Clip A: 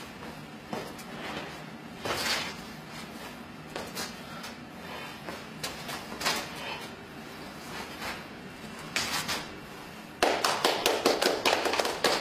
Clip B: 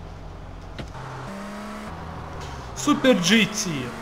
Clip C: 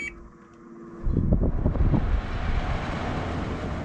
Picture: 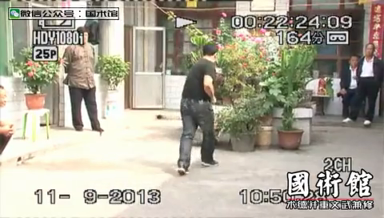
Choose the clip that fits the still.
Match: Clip A